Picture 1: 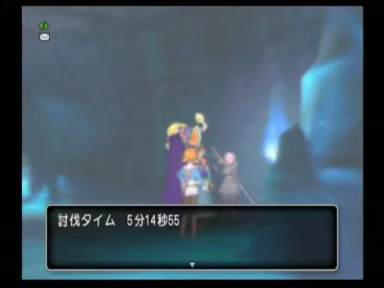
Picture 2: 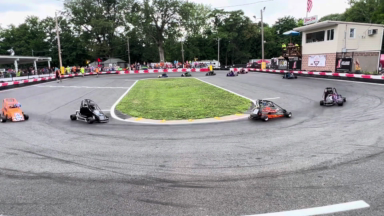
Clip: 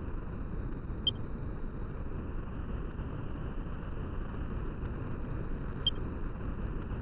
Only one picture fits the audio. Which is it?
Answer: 1